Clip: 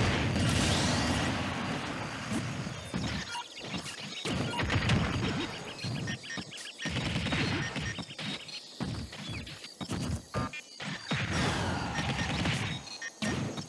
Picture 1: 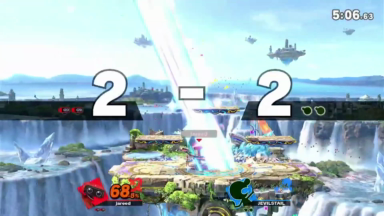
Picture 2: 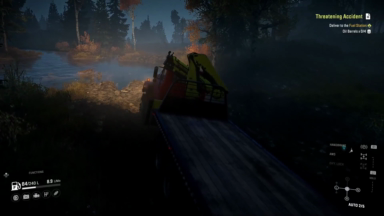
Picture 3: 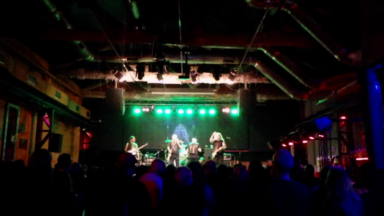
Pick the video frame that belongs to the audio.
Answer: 1